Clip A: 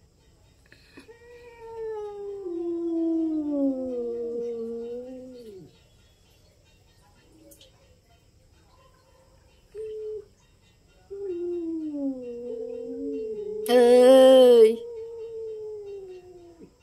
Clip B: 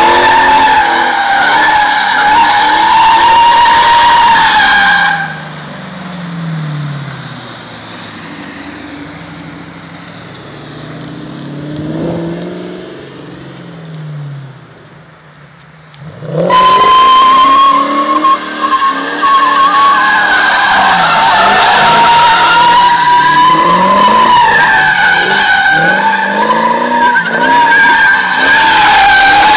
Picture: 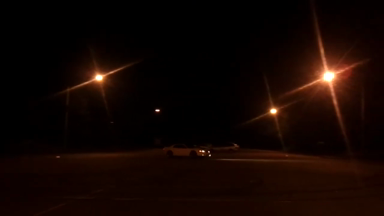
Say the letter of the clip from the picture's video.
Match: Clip B